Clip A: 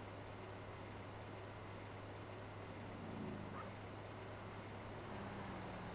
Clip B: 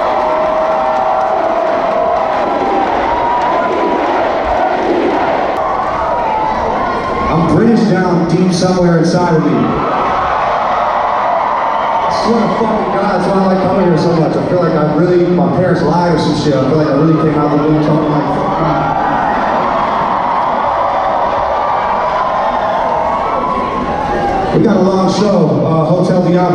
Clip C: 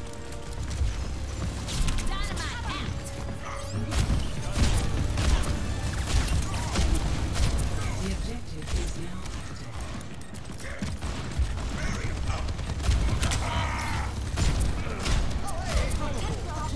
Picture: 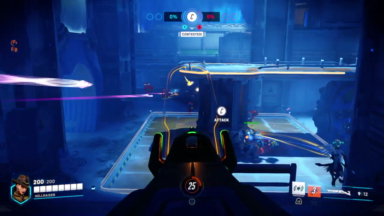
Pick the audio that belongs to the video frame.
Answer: C